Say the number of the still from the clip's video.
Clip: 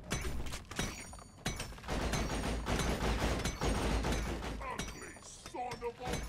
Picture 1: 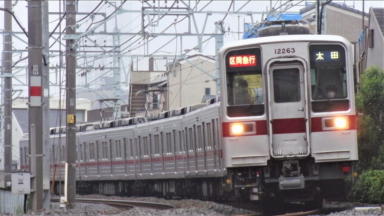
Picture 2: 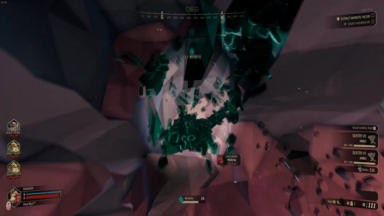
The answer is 2